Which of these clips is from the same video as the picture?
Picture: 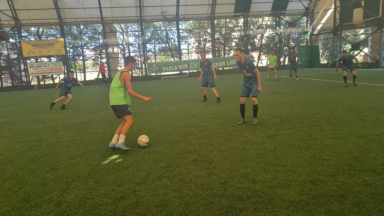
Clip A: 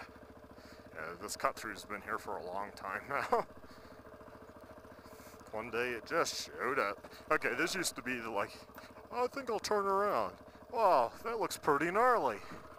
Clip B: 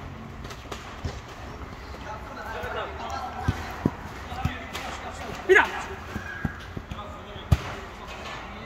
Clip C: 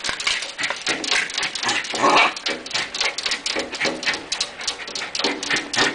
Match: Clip B